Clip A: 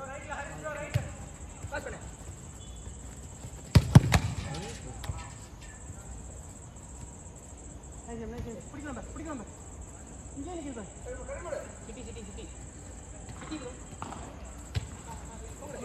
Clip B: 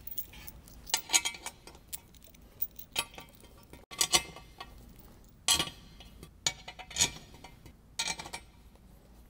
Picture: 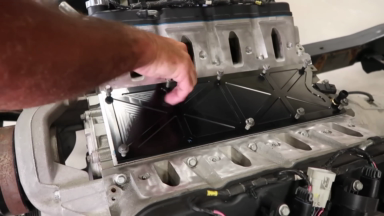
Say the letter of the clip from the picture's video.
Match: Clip B